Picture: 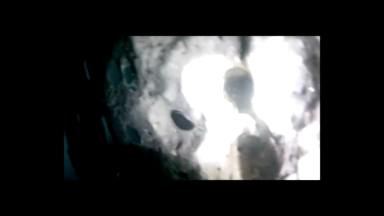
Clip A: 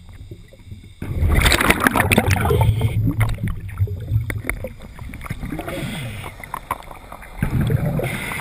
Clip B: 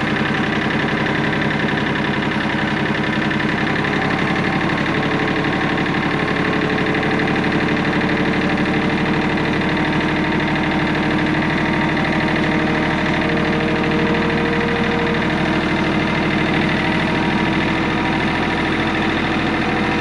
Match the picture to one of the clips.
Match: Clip A